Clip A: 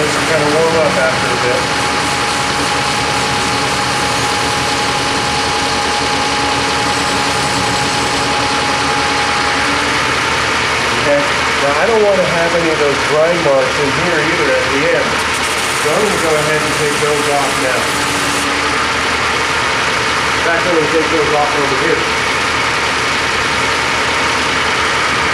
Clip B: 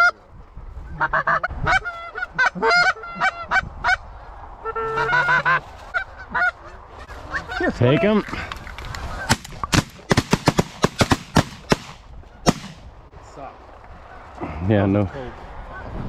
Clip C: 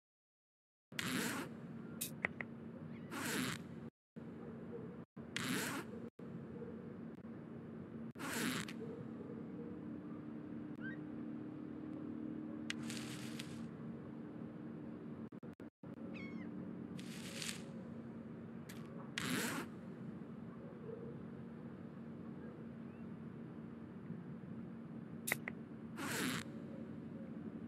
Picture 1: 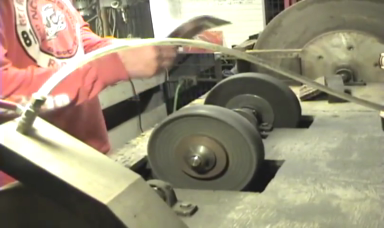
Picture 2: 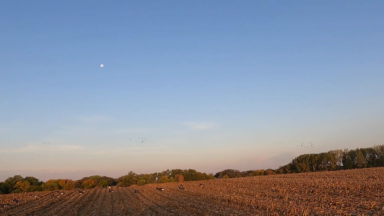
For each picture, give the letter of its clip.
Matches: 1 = A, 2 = B